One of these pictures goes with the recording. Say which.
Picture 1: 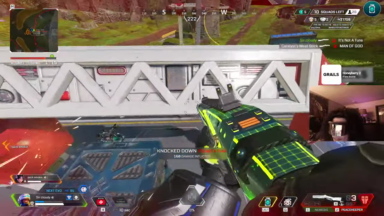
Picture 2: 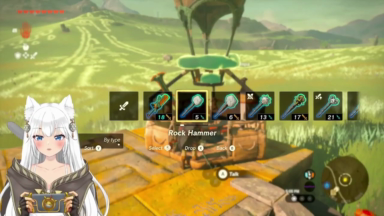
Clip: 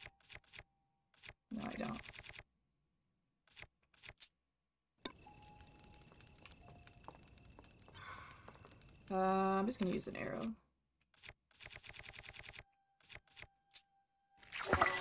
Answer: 2